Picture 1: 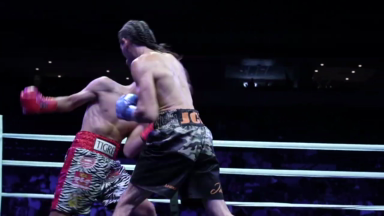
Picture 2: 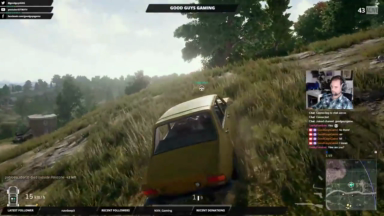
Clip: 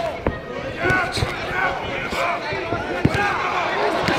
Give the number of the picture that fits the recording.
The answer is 1